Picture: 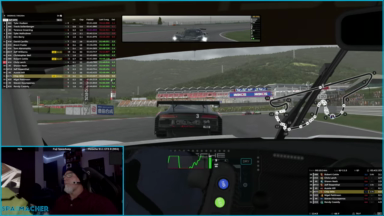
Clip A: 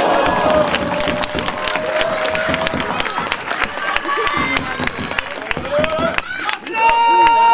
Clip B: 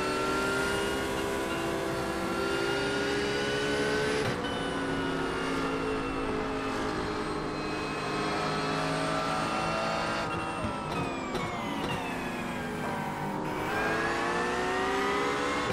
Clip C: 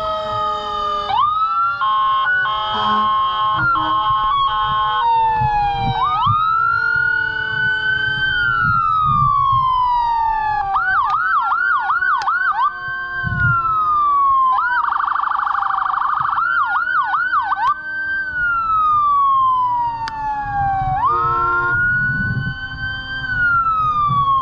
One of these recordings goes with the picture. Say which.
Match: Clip B